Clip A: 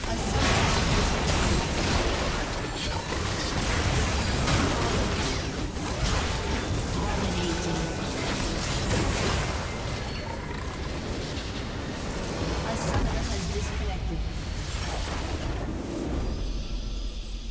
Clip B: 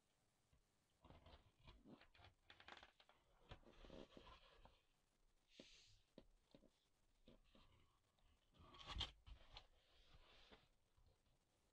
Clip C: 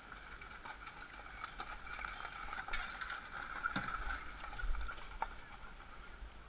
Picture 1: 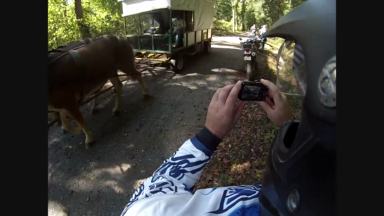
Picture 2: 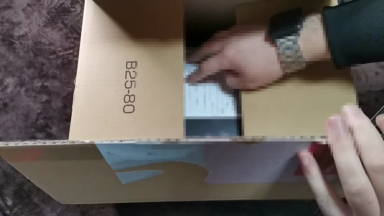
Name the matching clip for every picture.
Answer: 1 C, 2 B